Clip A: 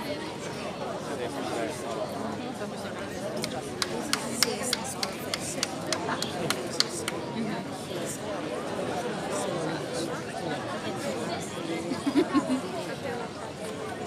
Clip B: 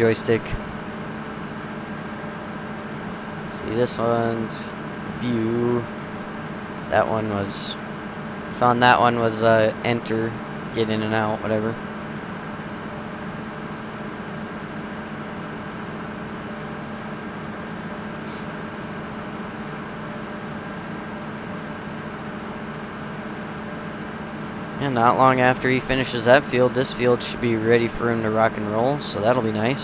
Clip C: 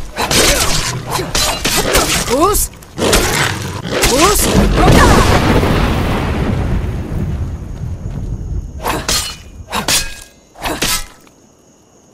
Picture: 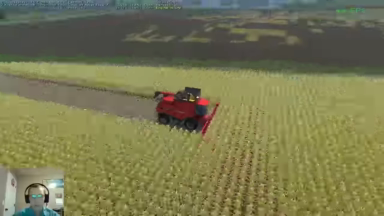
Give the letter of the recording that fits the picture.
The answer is B